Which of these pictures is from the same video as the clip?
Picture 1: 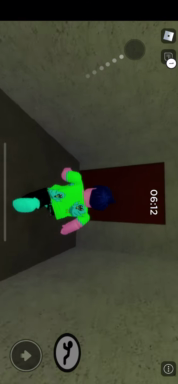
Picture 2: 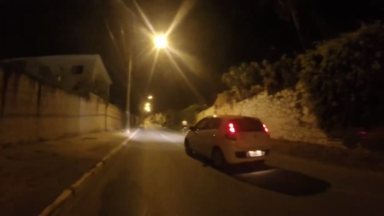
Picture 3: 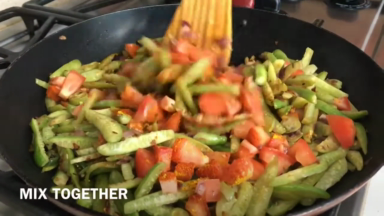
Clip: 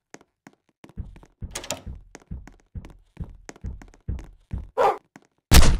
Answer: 1